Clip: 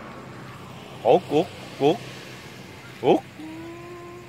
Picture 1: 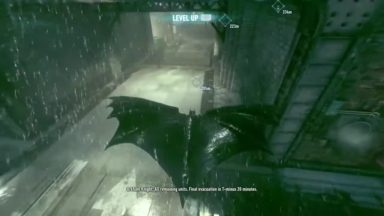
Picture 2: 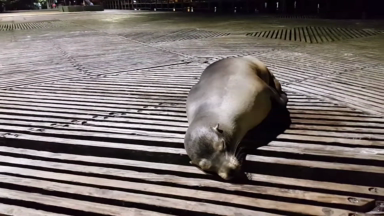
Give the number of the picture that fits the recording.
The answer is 2